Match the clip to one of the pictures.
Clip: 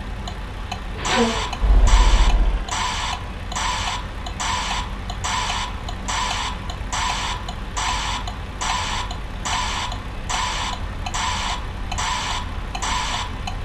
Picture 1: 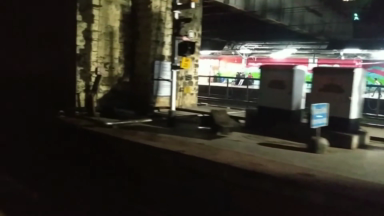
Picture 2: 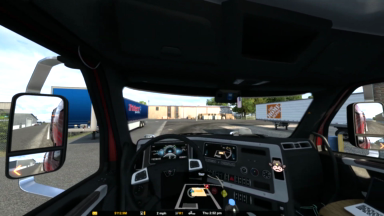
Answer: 2